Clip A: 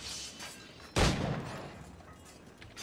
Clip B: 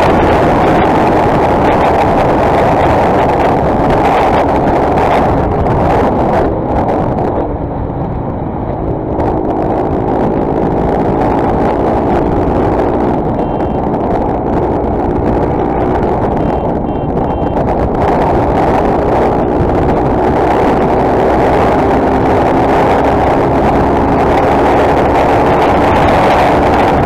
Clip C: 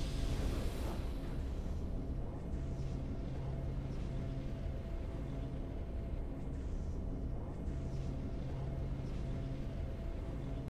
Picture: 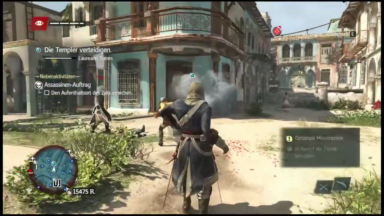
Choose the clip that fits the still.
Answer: A